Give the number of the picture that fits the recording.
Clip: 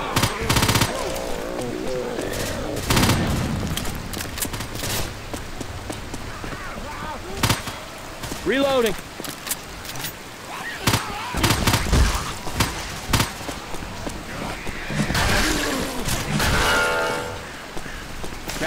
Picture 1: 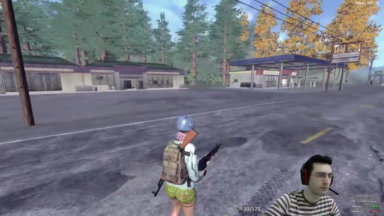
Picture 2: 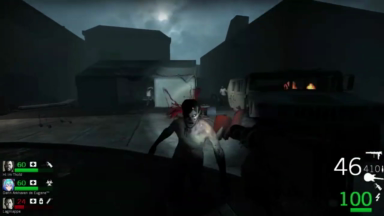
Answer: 2